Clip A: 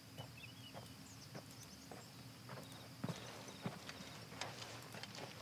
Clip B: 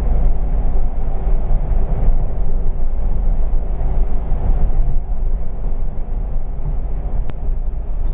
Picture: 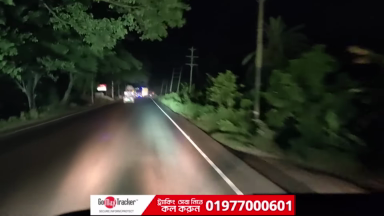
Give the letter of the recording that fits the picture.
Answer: B